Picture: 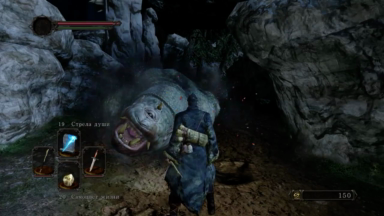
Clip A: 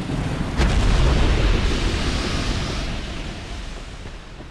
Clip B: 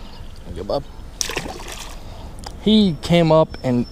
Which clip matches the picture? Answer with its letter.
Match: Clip A